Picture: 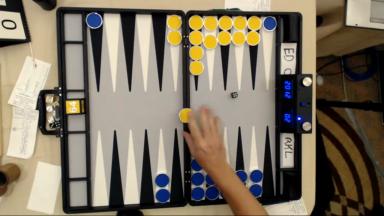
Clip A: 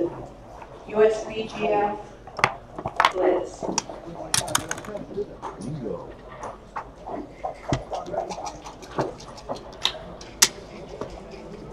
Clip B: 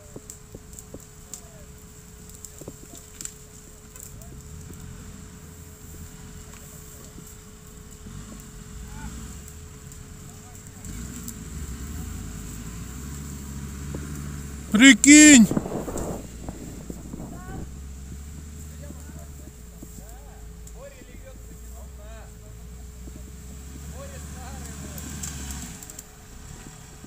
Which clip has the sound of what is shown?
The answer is A